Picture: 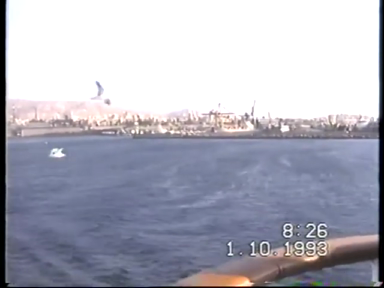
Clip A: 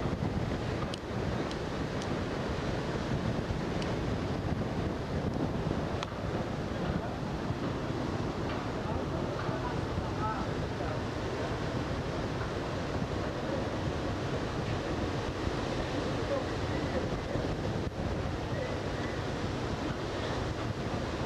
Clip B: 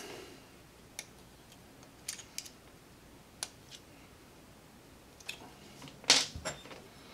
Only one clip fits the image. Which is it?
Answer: A